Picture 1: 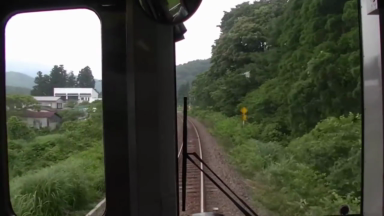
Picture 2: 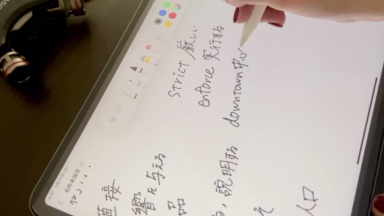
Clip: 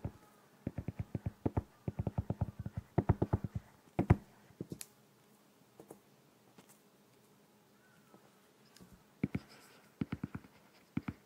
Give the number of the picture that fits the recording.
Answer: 2